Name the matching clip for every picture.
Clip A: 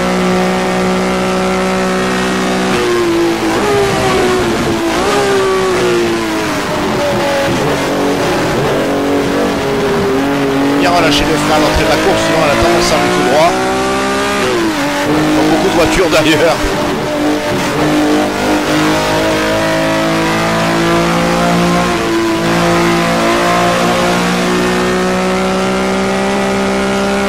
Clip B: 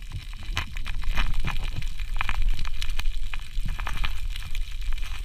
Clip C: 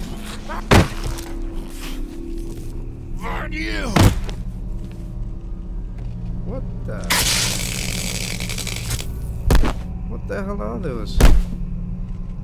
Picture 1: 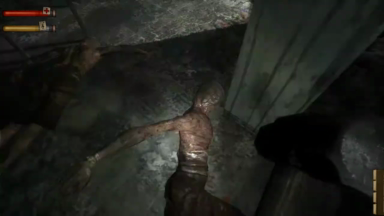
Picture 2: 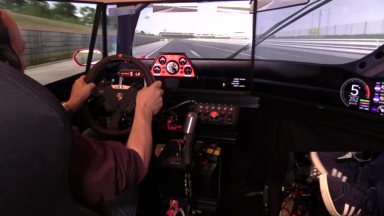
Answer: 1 C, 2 A